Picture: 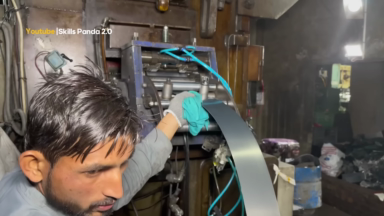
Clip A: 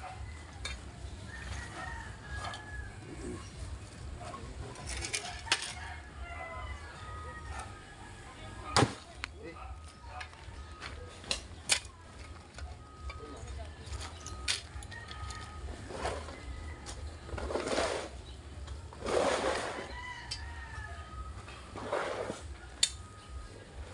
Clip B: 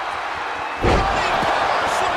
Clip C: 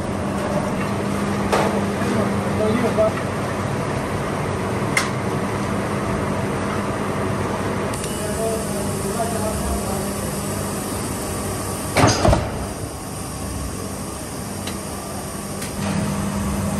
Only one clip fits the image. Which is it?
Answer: C